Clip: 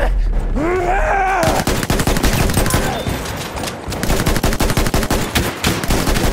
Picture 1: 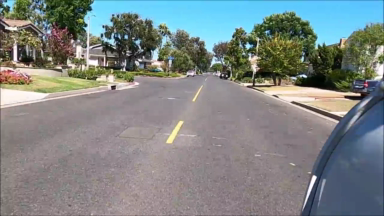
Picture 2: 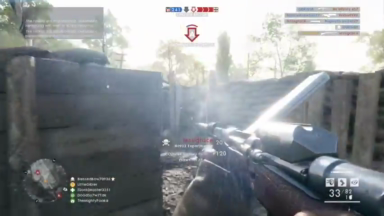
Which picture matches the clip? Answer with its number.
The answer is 2